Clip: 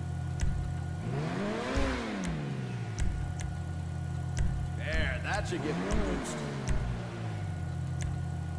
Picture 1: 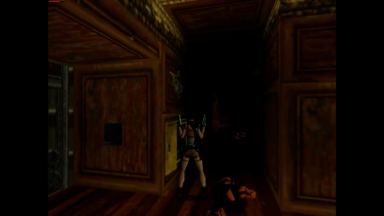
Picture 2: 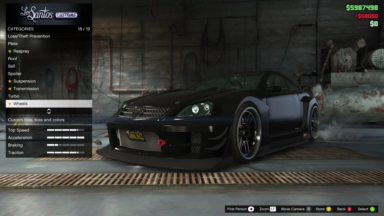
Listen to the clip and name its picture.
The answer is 2